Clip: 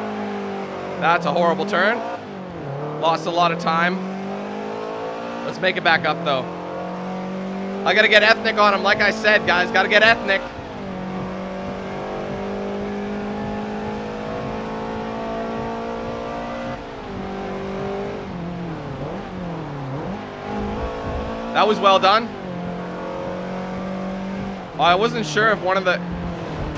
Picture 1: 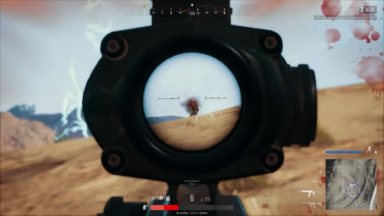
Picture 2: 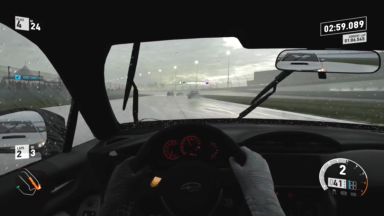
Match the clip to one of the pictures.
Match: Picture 2